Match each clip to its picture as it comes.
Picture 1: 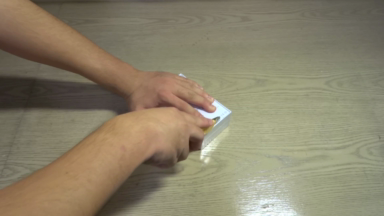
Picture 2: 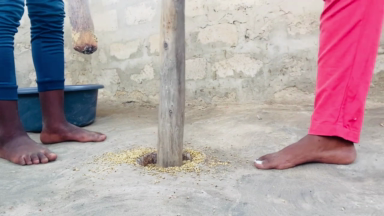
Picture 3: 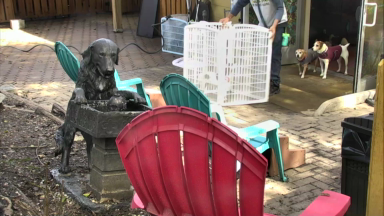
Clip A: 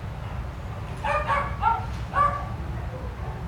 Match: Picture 3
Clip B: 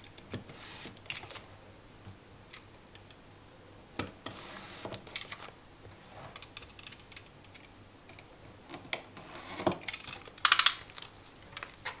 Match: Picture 1